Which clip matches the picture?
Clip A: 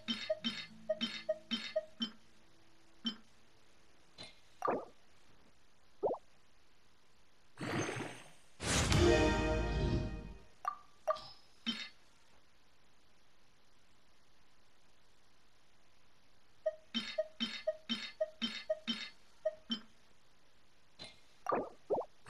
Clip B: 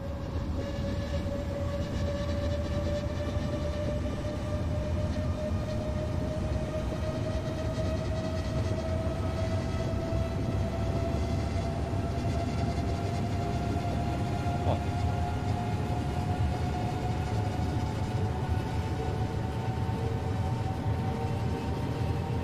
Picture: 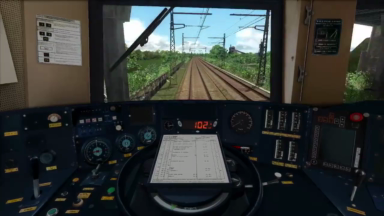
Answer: B